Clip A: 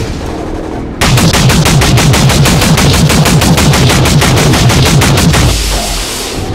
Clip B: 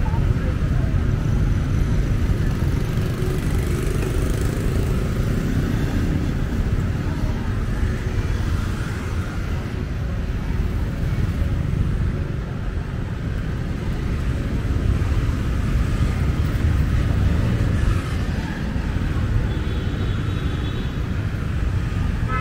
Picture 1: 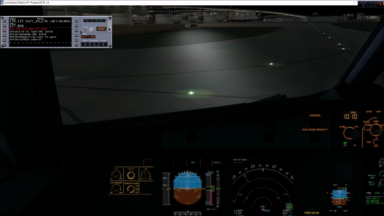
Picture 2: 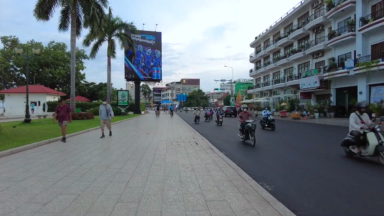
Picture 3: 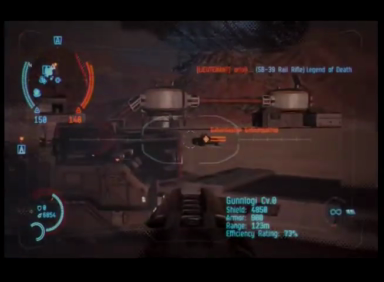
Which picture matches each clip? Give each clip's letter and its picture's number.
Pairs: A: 3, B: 2